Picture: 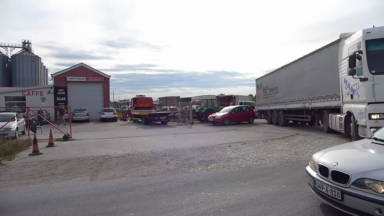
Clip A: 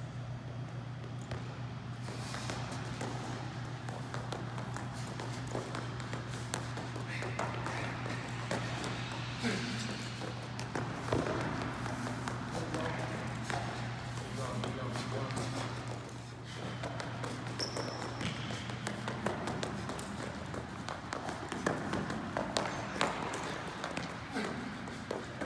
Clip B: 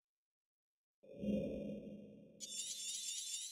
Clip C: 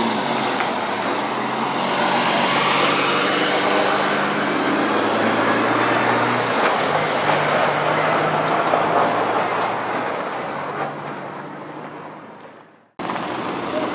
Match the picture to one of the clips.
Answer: C